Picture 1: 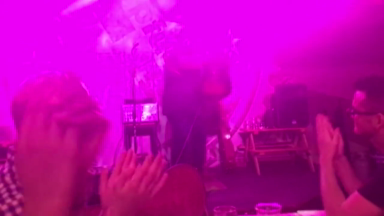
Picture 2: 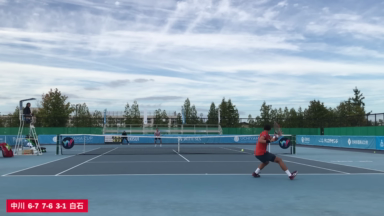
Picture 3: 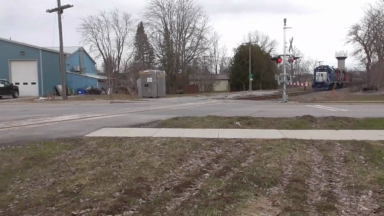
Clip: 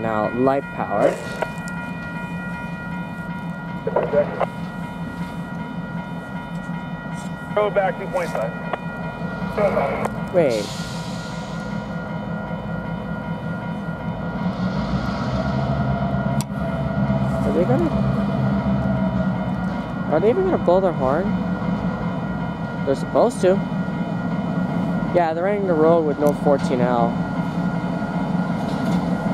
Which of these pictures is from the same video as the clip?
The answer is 3